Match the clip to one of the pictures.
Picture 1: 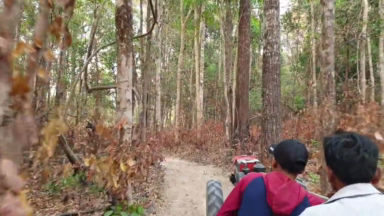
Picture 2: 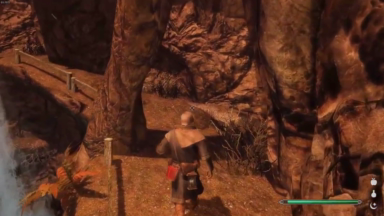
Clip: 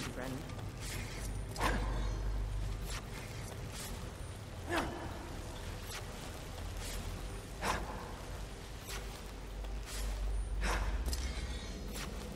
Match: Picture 2